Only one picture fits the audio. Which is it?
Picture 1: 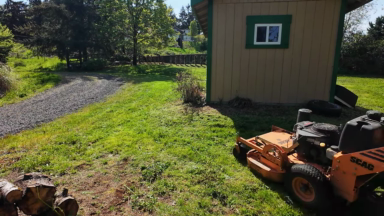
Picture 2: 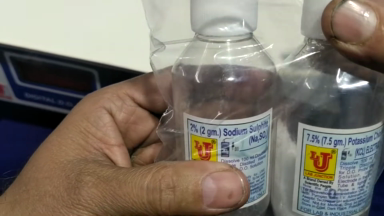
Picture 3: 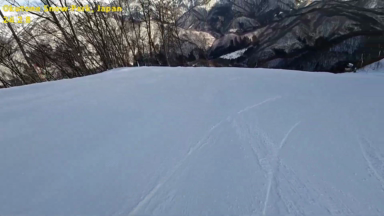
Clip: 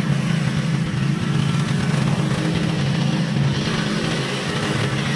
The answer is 1